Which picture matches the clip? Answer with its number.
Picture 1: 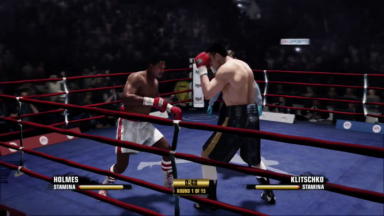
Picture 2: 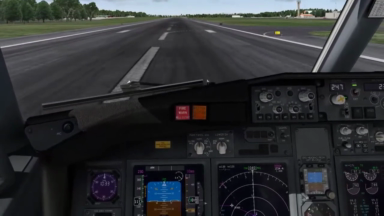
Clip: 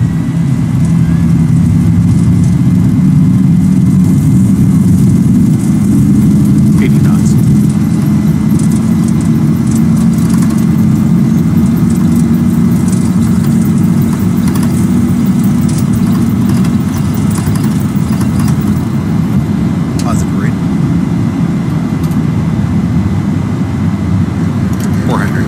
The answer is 2